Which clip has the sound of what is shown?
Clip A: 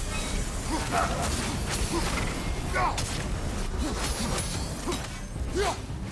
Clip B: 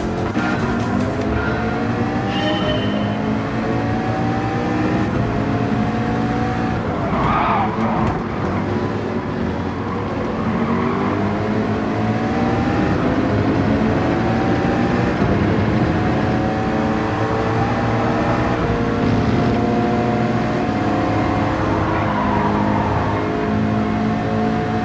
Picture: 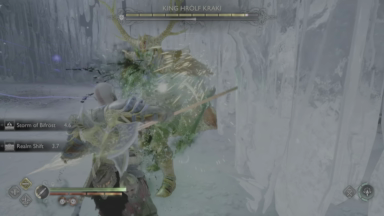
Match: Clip A